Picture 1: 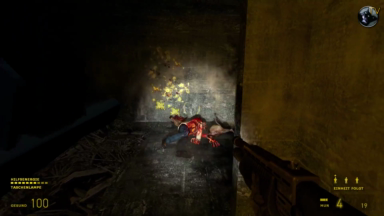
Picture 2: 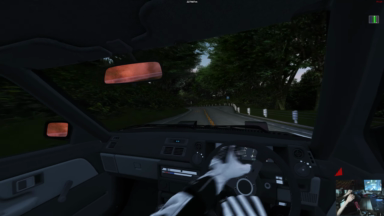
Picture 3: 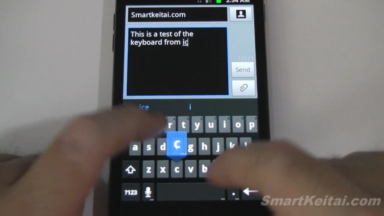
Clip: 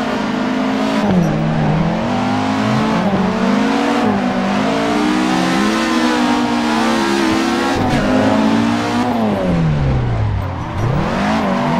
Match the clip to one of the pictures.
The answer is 2